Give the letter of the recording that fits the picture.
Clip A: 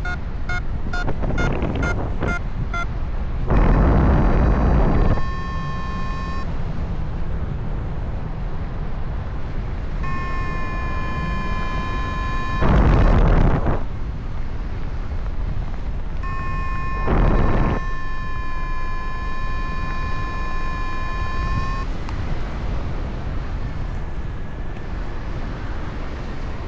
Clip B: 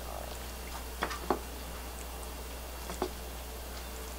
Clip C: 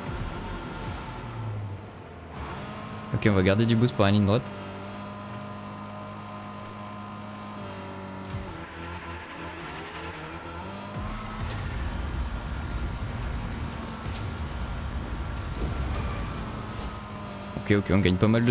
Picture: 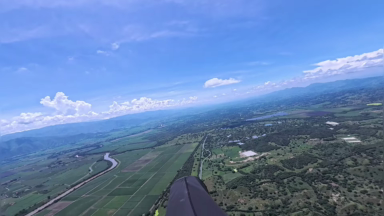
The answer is A